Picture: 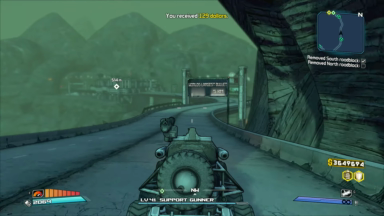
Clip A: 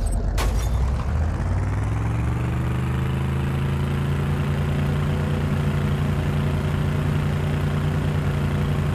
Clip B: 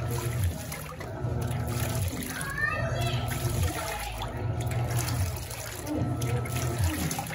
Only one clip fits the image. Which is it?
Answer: A